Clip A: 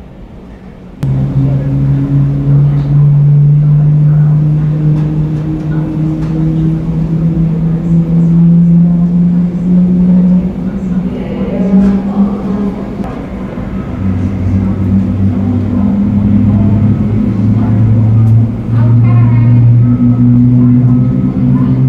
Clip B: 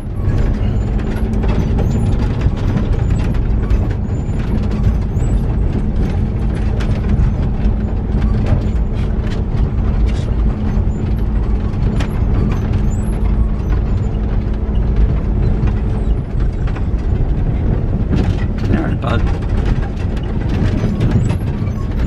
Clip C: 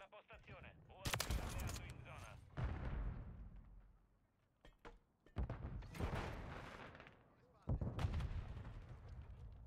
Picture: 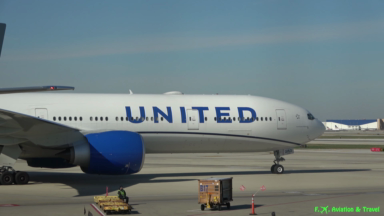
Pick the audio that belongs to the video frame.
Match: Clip A